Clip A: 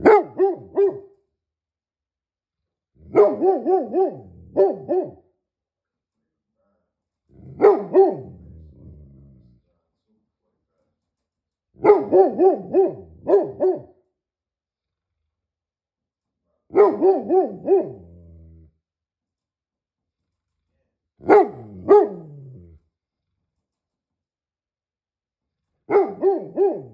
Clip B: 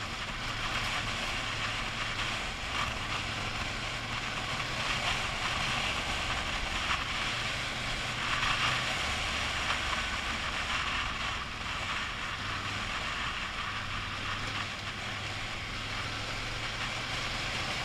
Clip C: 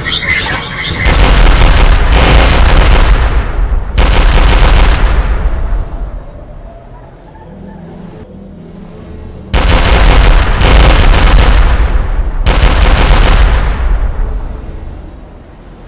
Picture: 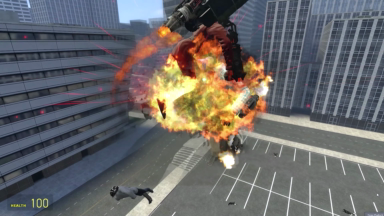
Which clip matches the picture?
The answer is C